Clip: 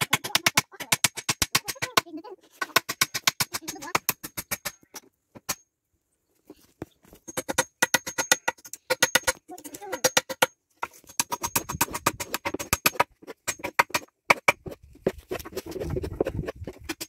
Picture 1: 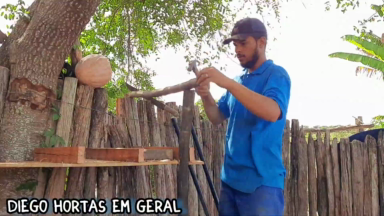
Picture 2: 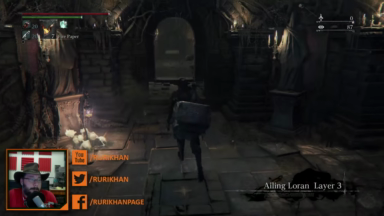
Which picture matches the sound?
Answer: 1